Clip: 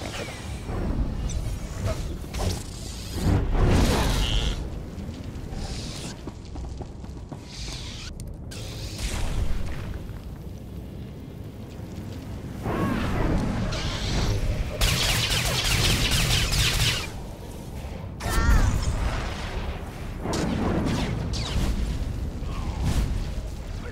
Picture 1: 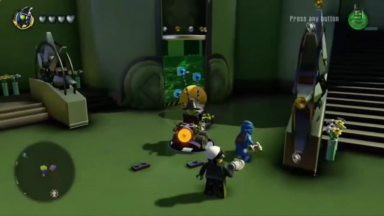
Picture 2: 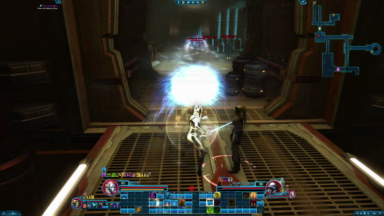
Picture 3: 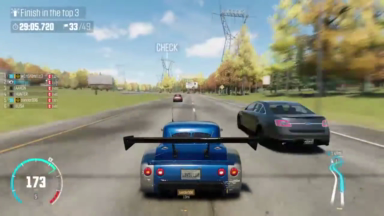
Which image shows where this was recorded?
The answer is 2